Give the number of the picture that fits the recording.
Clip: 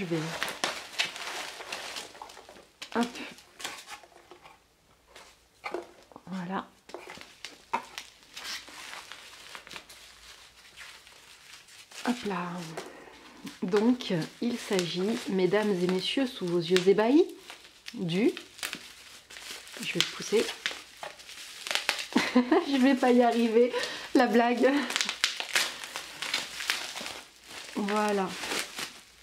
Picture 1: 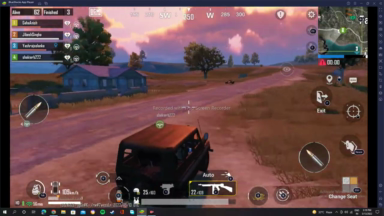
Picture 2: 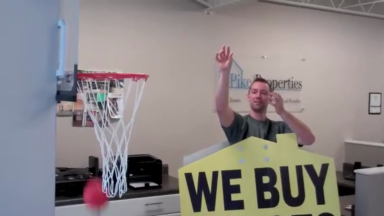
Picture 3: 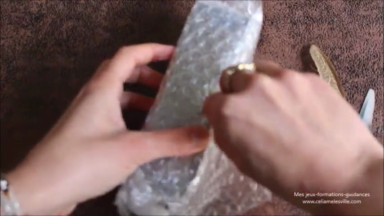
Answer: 3